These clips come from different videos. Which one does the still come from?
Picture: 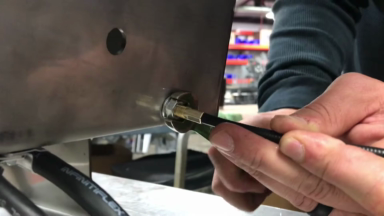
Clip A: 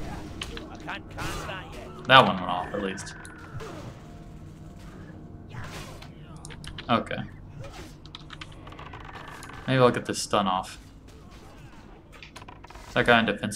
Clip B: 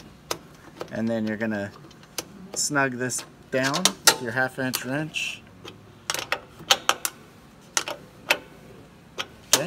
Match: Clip B